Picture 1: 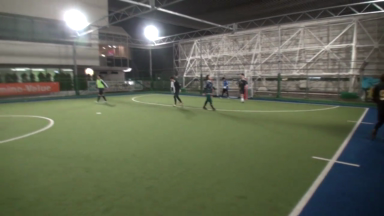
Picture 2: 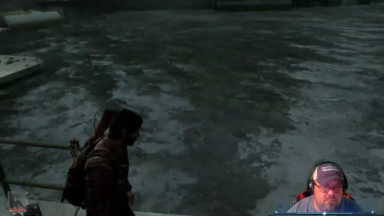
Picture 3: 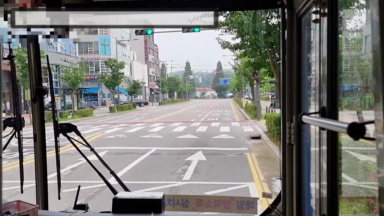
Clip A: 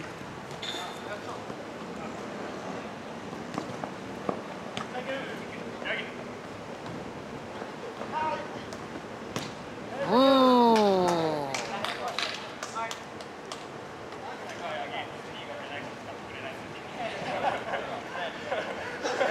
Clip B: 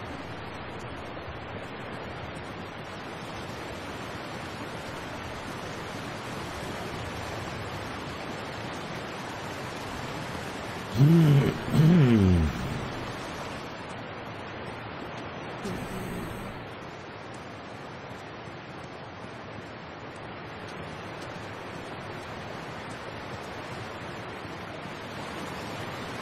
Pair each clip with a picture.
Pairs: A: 1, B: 2